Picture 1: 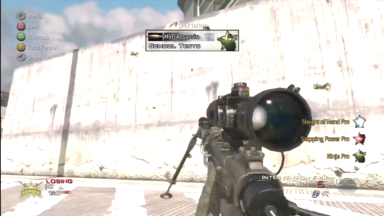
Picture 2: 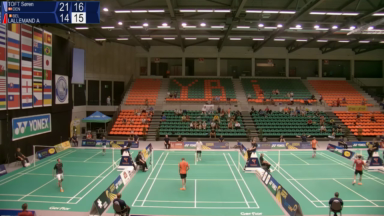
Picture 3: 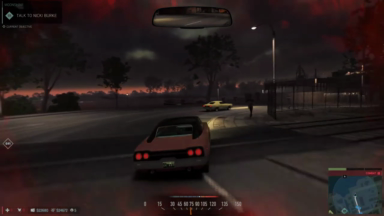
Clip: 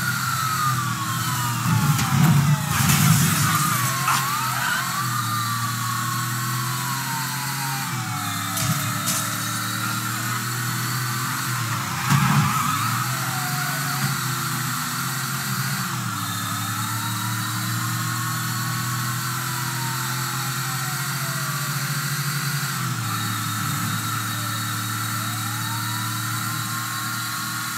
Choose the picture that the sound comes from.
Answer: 3